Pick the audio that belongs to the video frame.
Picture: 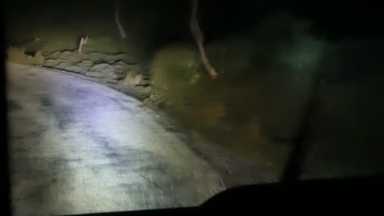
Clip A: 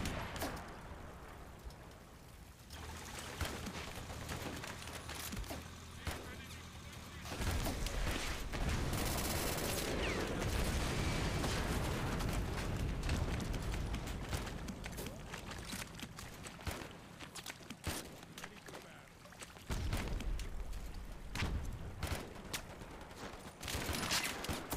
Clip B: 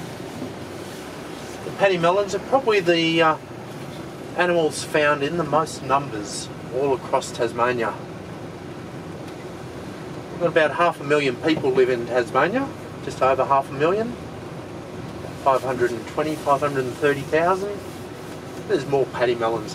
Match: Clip B